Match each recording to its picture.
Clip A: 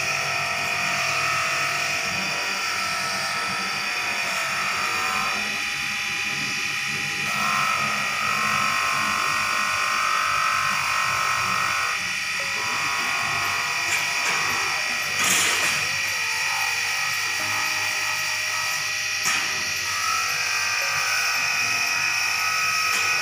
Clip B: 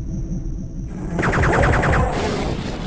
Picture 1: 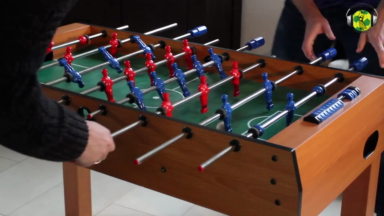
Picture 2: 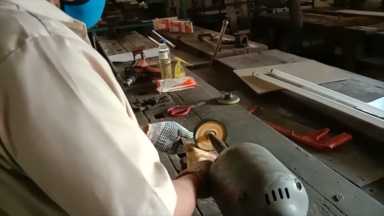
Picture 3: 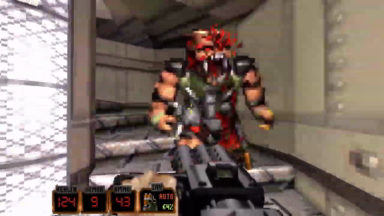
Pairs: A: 2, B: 3